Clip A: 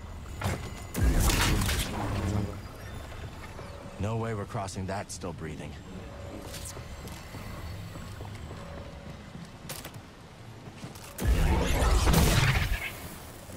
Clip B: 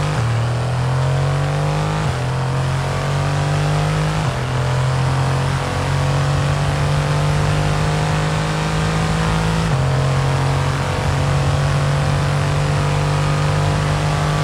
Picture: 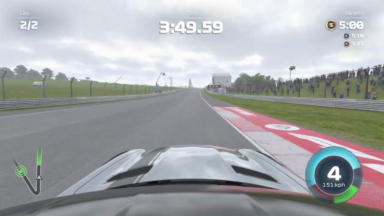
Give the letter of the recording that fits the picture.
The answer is B